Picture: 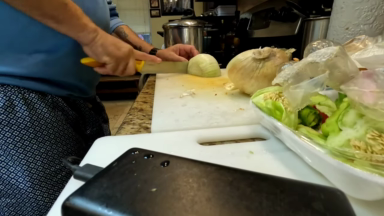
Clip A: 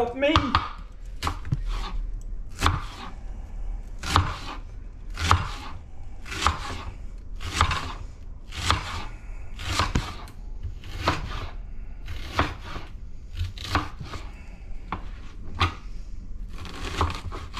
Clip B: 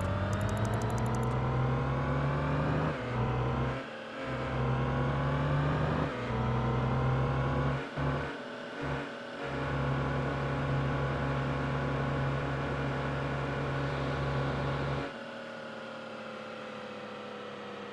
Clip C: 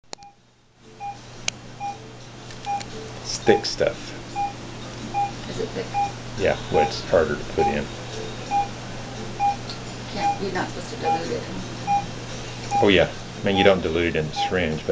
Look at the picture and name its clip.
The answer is A